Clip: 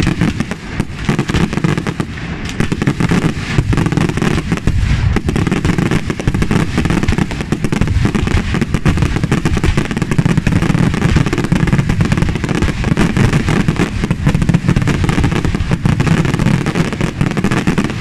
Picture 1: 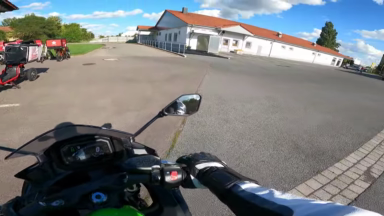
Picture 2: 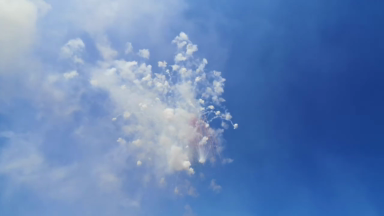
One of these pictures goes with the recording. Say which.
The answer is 2